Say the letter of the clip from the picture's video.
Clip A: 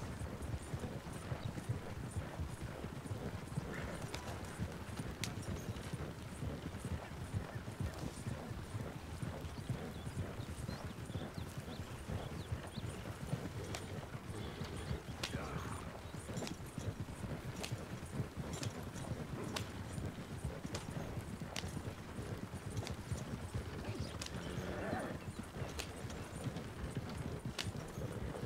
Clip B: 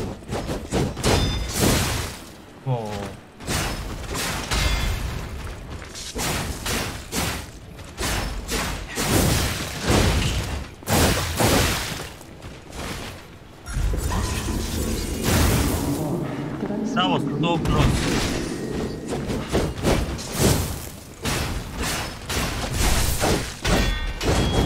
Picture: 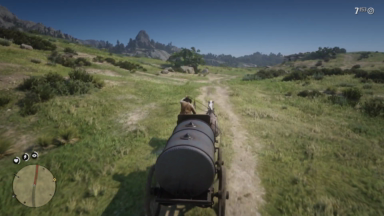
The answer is A